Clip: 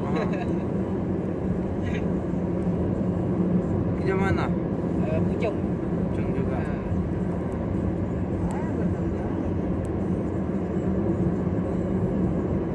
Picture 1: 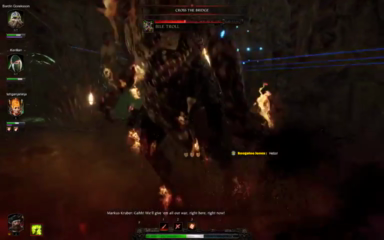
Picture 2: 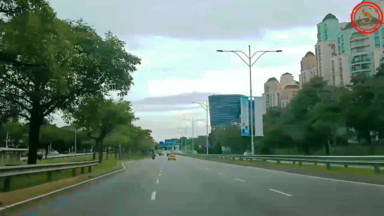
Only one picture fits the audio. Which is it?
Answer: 2